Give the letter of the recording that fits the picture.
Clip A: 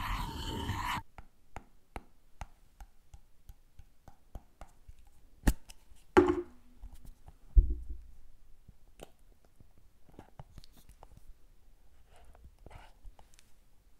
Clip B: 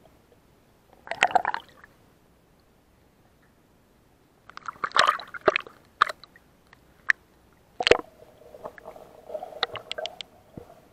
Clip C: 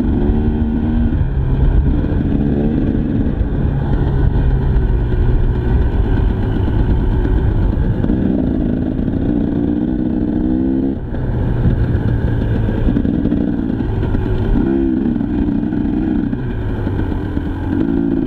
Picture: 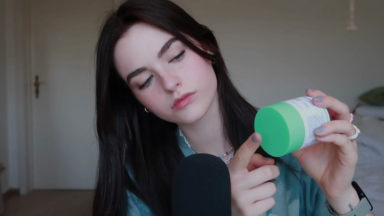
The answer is A